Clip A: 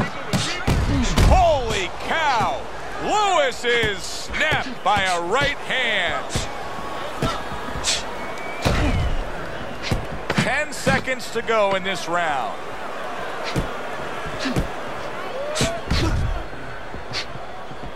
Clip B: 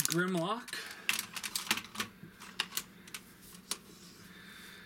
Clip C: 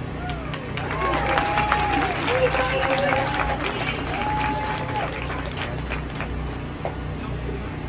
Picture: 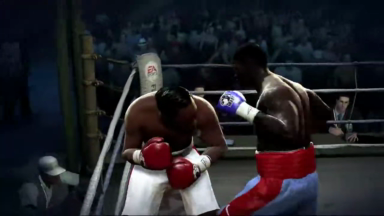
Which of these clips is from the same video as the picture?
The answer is A